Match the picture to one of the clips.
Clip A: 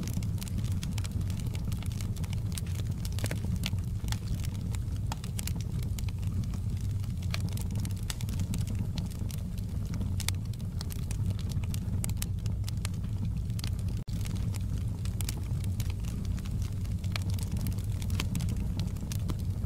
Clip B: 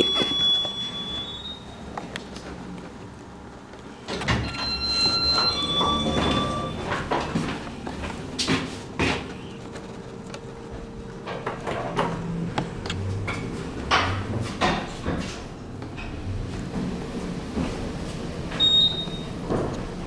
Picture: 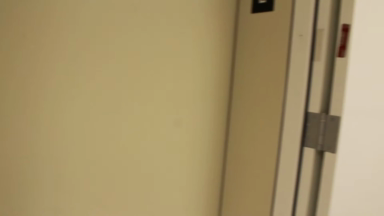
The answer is B